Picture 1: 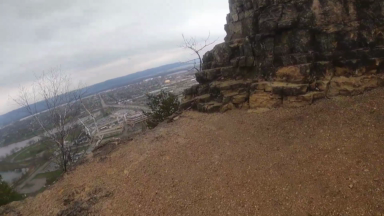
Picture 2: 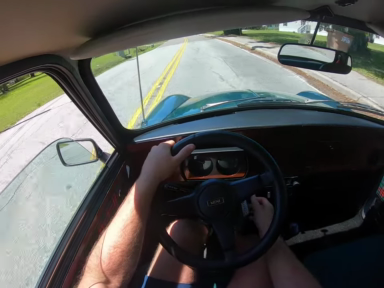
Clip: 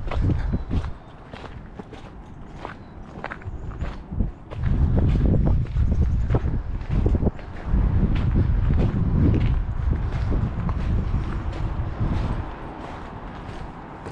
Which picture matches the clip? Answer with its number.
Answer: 1